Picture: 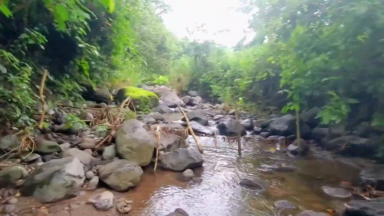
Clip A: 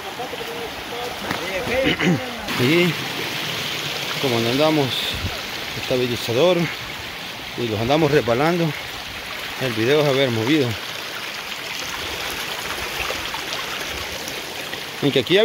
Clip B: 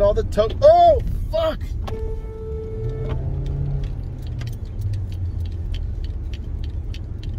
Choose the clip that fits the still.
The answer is A